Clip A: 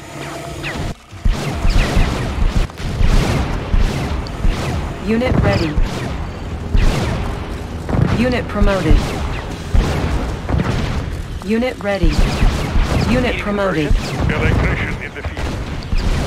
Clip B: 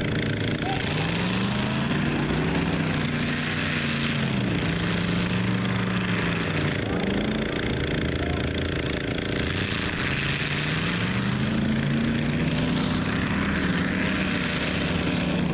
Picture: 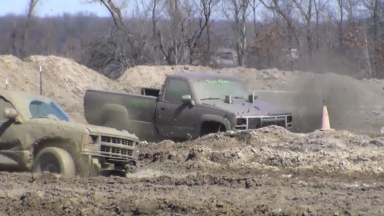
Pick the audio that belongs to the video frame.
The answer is B